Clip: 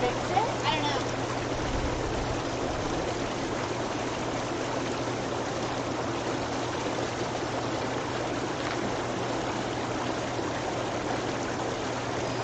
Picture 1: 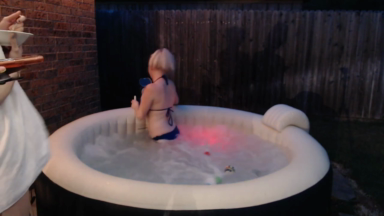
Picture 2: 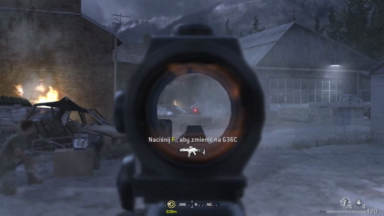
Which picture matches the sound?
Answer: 1